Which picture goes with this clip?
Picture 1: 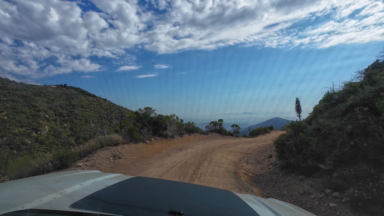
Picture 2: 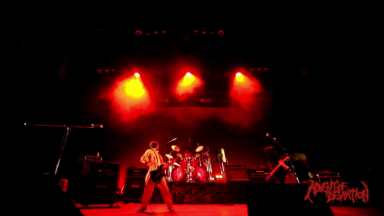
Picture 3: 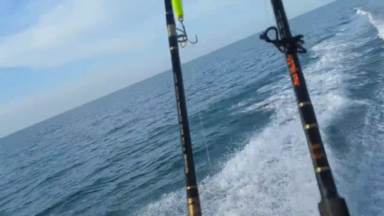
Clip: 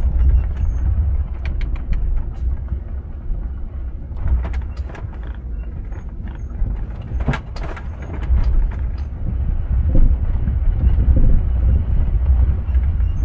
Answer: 1